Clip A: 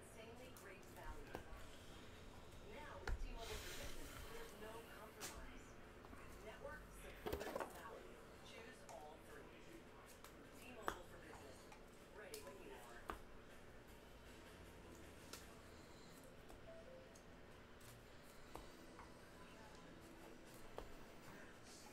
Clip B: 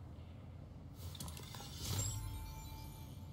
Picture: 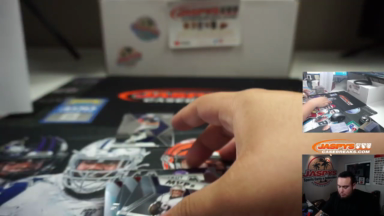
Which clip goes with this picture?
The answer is A